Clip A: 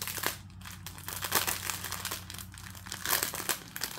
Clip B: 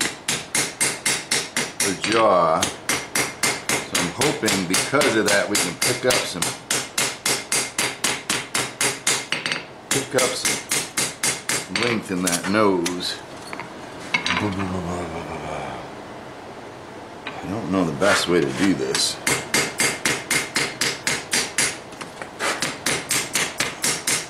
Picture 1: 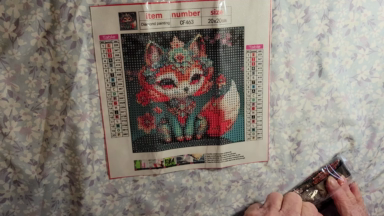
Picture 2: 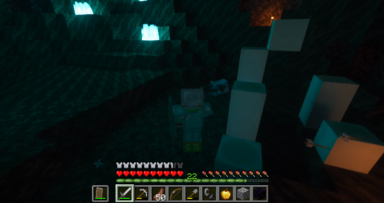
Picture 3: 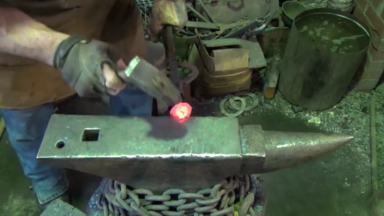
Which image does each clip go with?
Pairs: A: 1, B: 3